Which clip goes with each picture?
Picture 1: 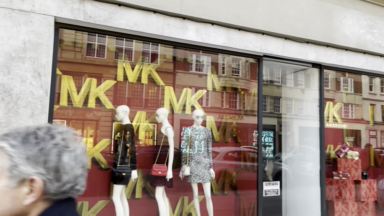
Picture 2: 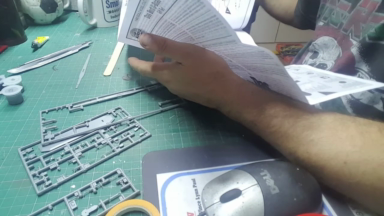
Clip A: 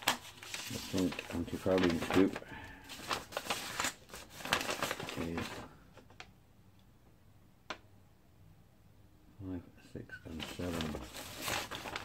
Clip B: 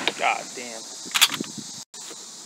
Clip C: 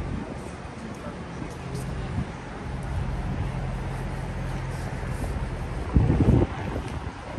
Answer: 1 C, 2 A